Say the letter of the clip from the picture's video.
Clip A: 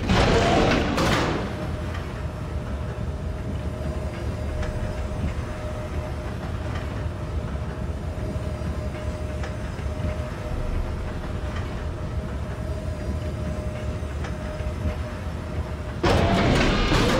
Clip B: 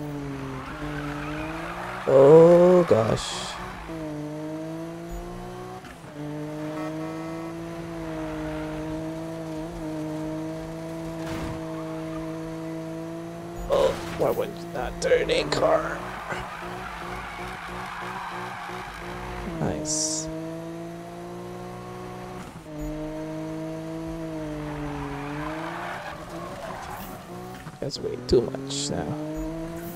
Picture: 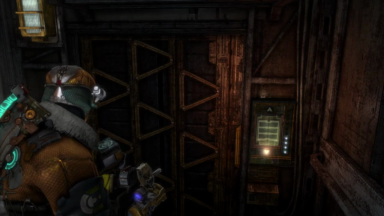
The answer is A